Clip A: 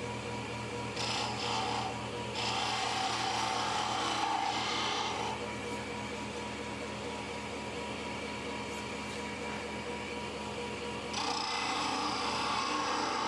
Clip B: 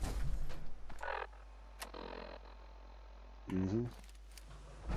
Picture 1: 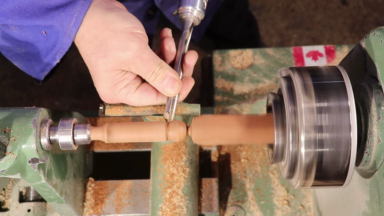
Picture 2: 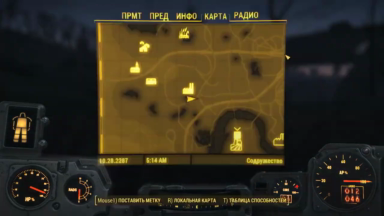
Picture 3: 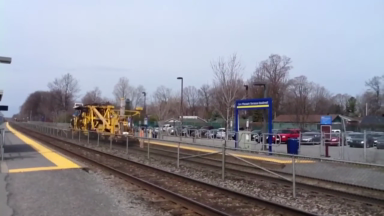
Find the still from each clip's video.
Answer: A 1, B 2